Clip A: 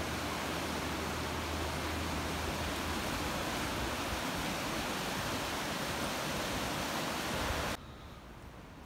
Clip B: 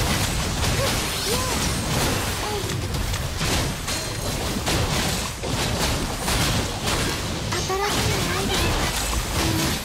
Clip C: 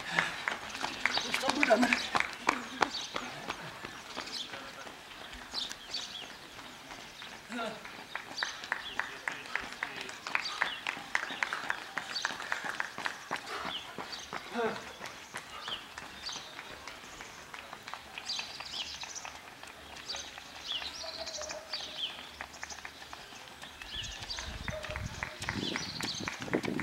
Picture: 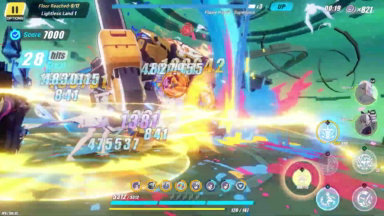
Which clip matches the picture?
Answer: B